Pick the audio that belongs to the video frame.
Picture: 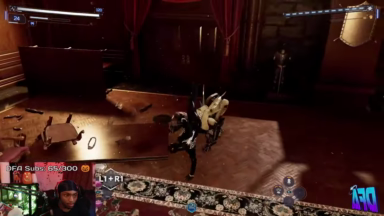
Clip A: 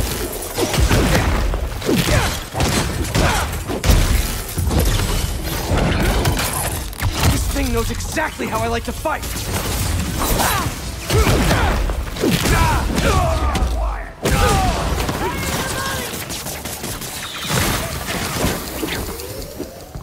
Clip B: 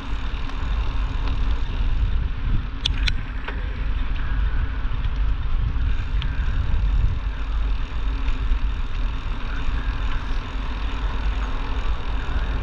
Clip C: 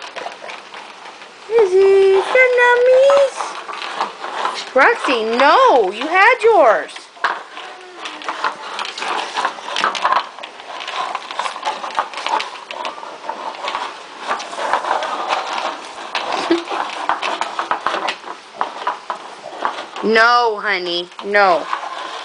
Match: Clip A